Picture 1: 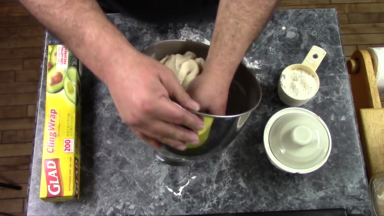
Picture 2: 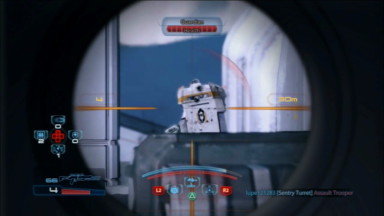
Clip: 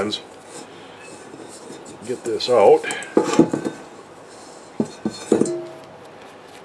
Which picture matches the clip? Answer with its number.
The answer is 1